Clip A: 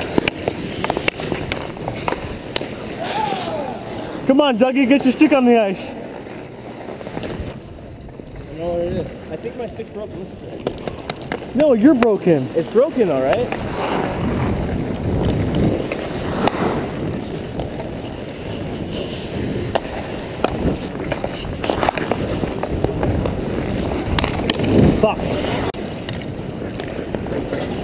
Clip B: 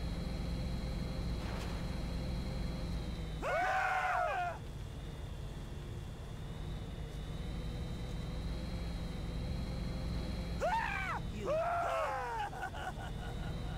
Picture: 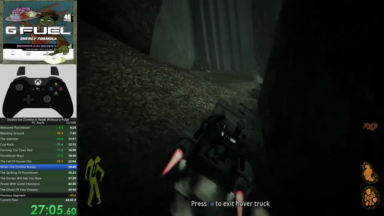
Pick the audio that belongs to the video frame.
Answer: B